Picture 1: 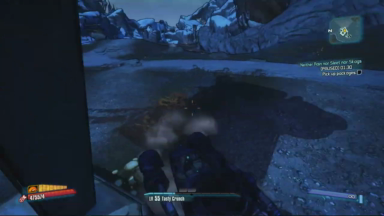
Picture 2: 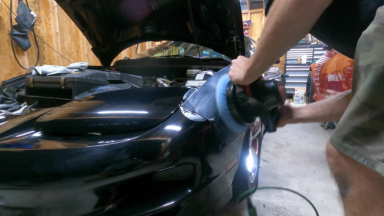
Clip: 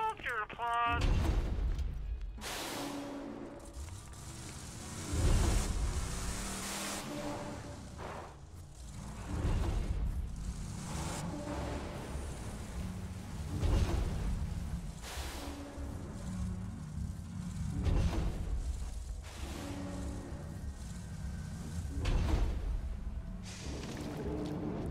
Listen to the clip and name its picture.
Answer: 1